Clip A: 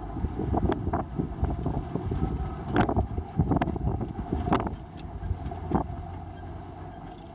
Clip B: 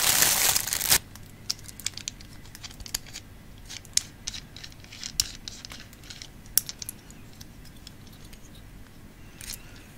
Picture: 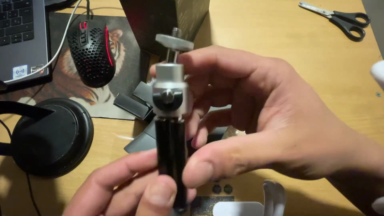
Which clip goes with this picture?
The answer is B